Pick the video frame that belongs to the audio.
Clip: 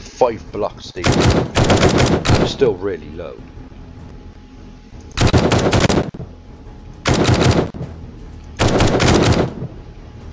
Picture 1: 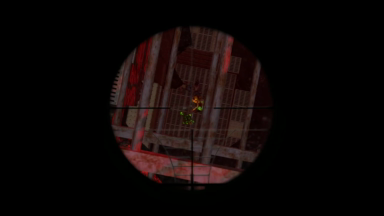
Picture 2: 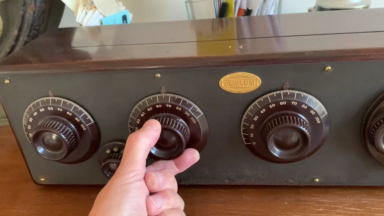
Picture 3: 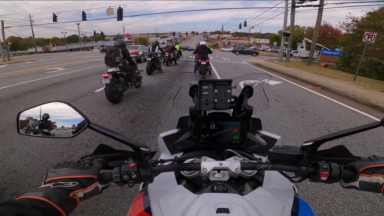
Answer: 1